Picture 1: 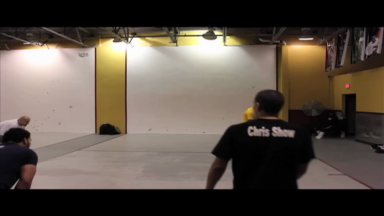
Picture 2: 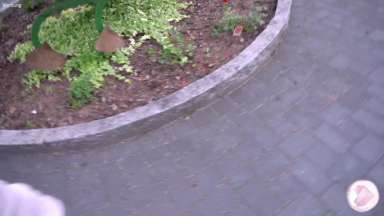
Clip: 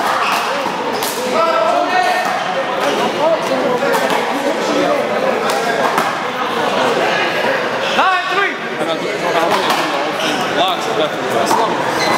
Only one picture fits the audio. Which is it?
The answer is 1